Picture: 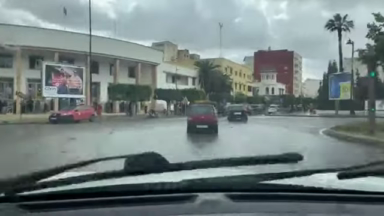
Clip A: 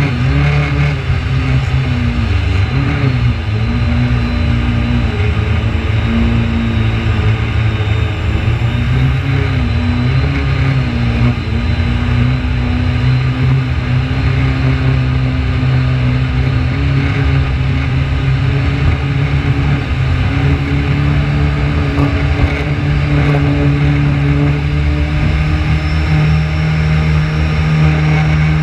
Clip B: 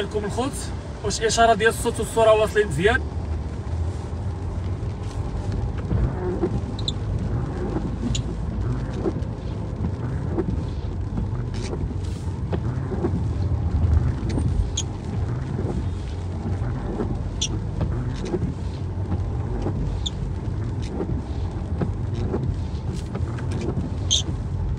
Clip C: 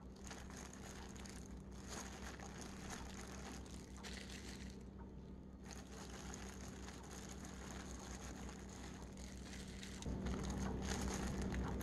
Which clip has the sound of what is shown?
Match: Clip B